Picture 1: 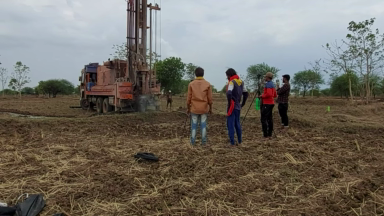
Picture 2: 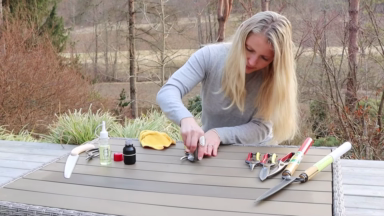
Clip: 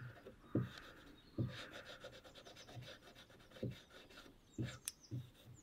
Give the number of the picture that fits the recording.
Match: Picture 2